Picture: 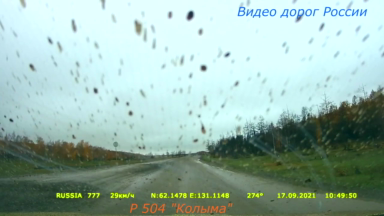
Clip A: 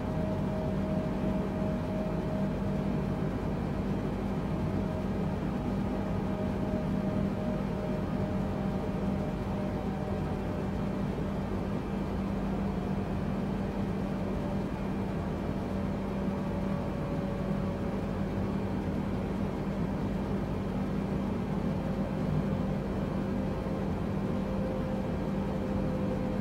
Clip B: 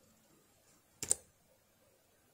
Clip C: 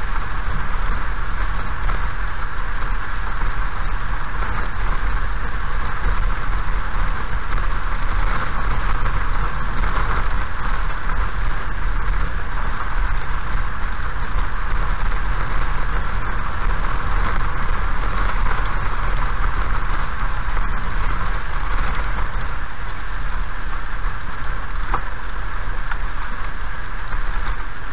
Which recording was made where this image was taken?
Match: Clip C